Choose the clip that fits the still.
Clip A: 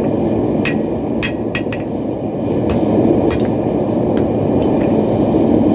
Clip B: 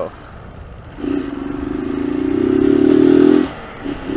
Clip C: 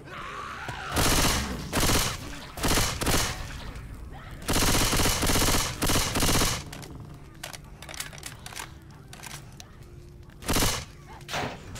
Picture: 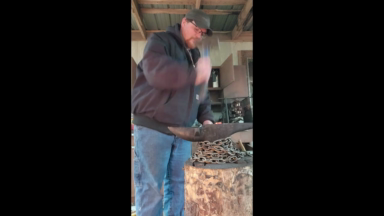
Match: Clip A